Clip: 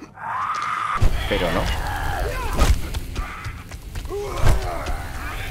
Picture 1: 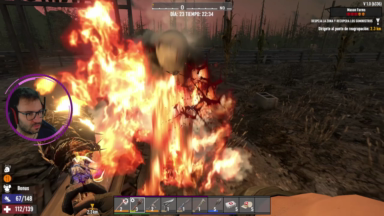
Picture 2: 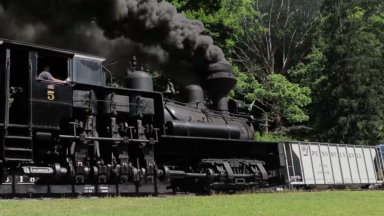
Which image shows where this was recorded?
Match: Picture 1